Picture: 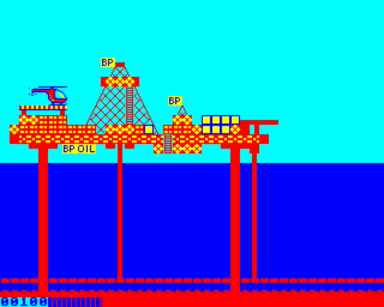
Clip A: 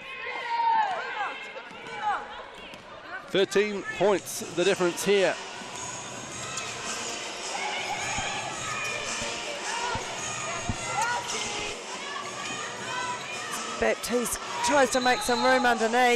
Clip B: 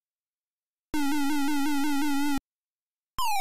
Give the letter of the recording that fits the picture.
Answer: B